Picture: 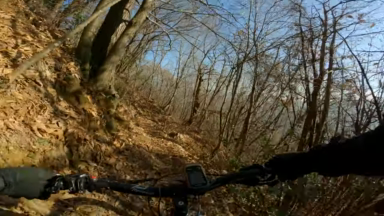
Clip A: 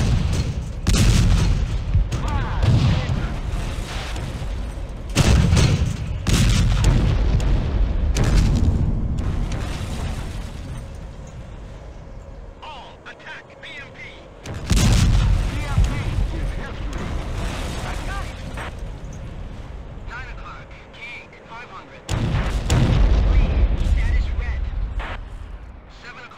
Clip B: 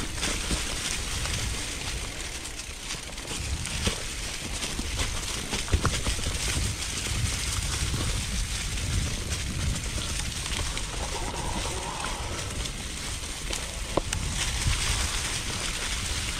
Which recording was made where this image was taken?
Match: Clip B